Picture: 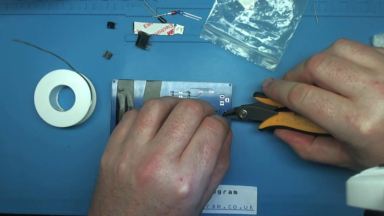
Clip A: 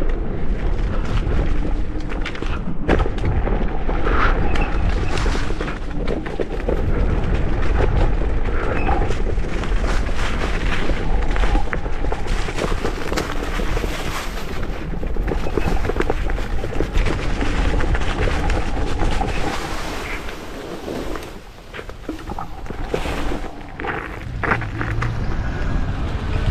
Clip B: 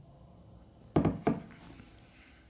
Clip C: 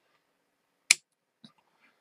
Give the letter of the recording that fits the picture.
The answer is C